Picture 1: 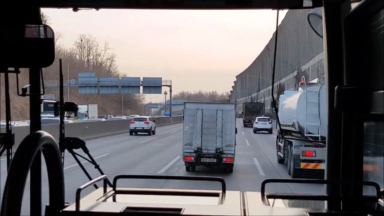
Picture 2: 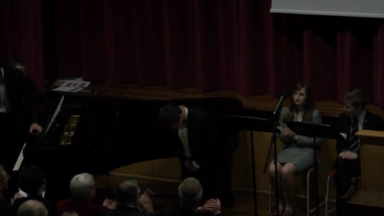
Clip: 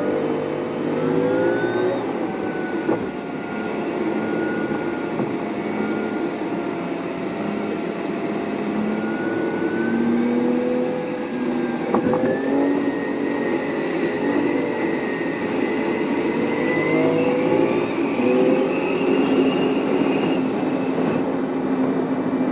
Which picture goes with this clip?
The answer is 1